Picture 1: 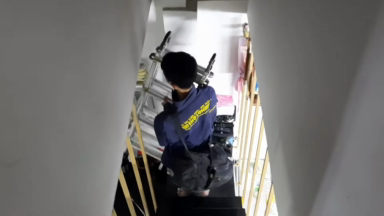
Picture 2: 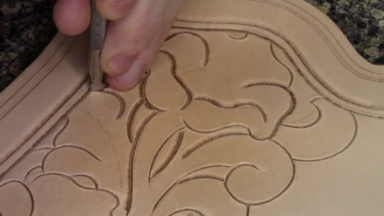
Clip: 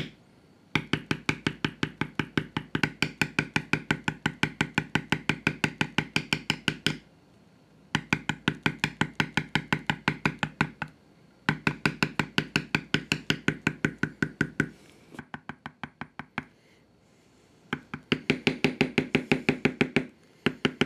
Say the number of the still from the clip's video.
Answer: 2